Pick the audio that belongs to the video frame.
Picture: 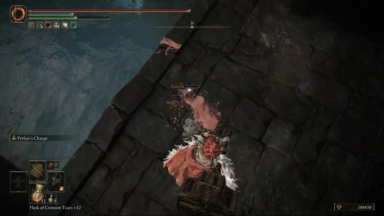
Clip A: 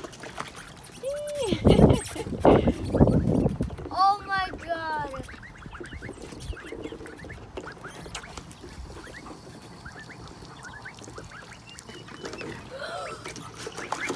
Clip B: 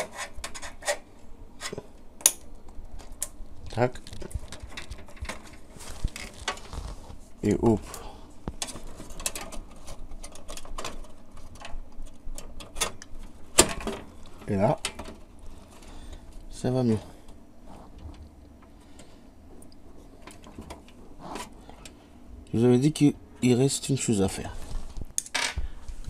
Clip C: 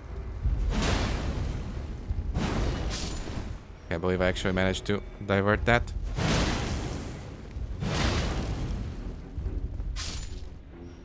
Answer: C